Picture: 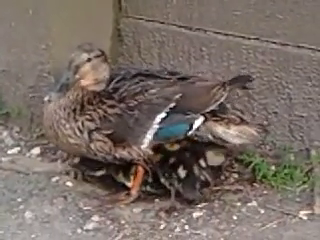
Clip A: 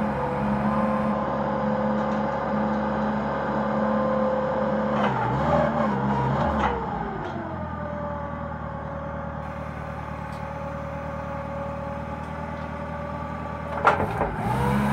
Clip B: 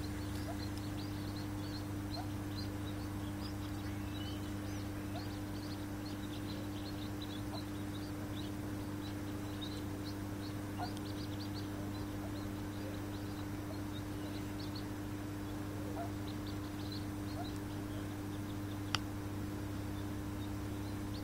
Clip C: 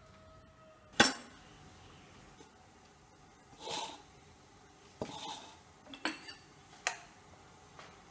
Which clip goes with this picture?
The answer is B